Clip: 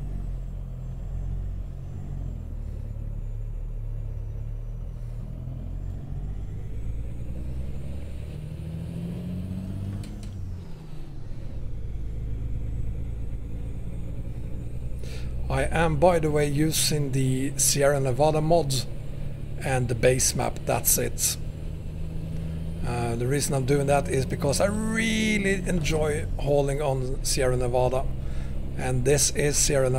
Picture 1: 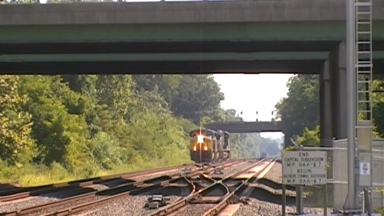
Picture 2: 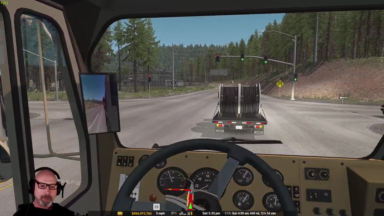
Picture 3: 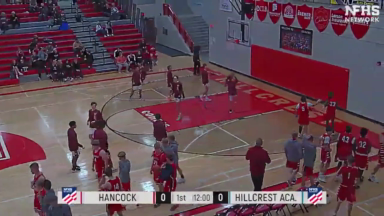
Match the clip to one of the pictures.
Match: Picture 2